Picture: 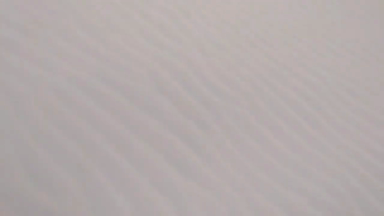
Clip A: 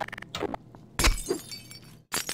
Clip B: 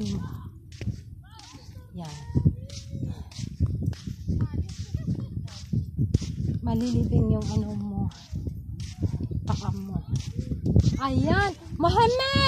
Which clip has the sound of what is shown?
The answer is B